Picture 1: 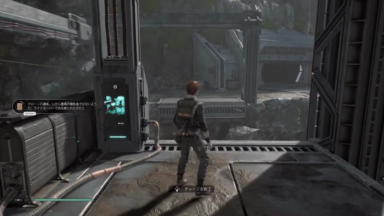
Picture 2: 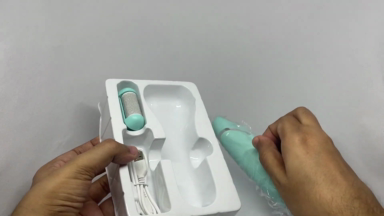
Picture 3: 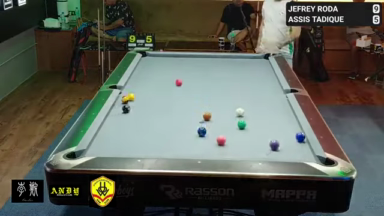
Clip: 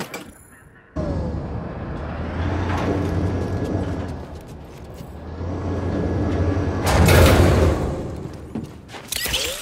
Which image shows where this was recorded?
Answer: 1